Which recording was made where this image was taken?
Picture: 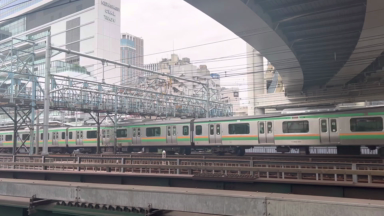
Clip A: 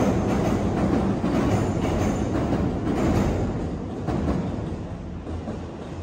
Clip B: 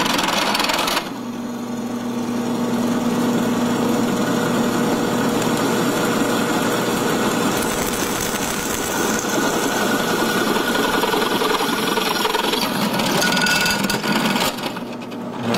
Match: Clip A